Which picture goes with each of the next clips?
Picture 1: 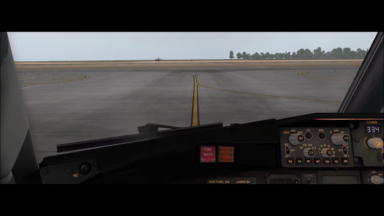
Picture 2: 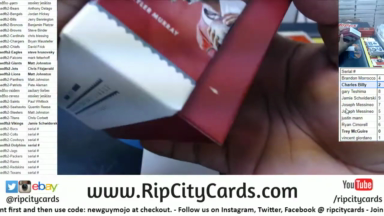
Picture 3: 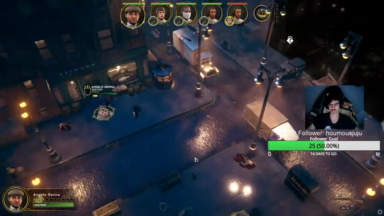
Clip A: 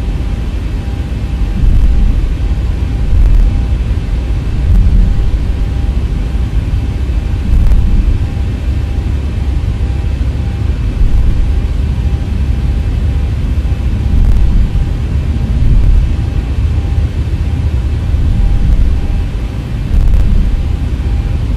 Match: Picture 1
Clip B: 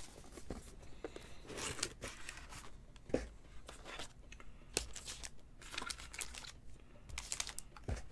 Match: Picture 2